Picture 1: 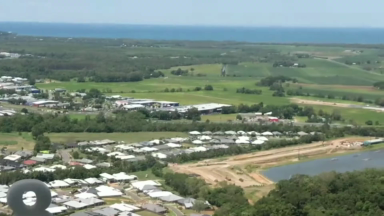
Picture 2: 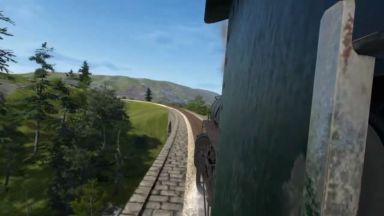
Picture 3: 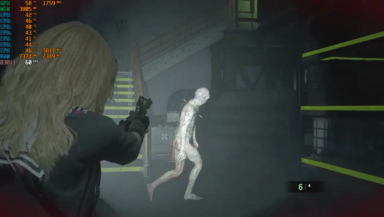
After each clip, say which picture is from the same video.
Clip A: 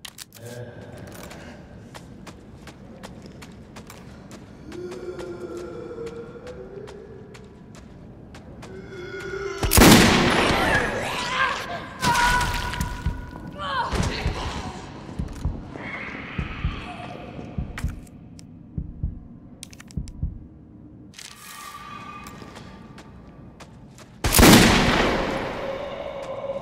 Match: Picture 3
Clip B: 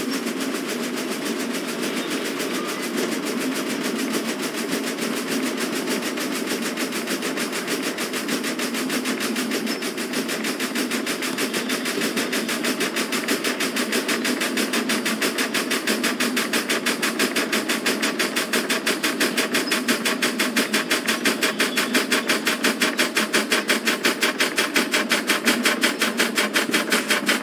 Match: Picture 2